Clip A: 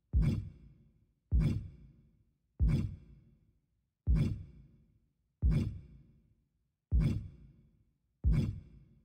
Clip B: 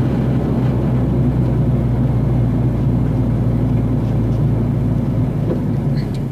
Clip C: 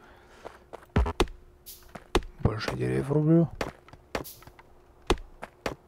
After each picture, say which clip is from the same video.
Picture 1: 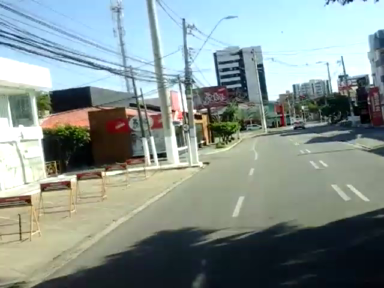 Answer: B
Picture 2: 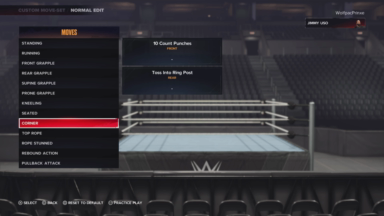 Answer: A